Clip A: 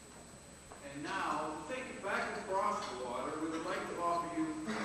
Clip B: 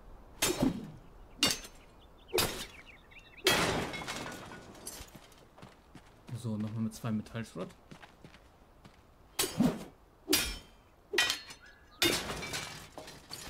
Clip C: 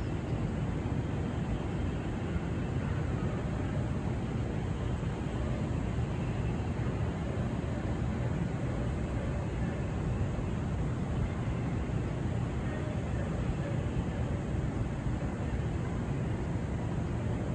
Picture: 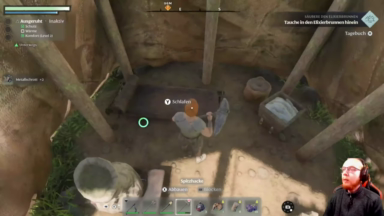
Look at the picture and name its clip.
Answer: B